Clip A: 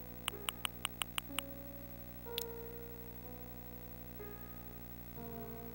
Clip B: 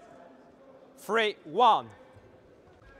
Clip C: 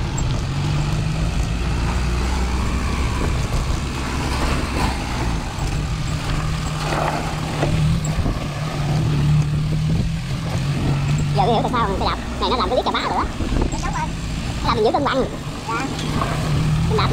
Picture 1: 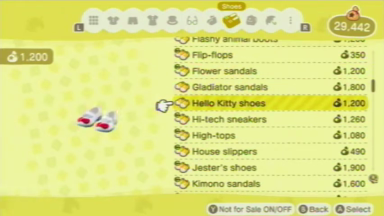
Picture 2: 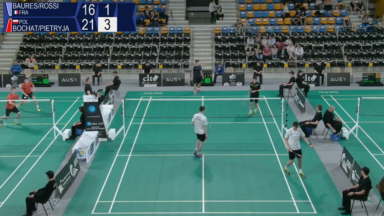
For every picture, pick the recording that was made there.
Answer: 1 A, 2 B